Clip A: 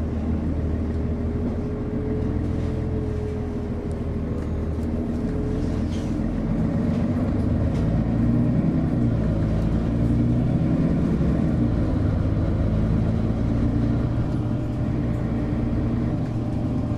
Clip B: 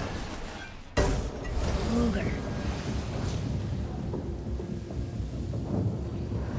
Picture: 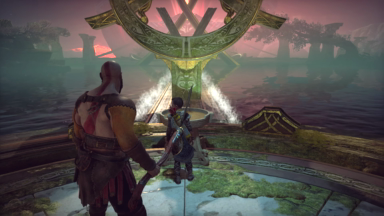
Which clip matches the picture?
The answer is B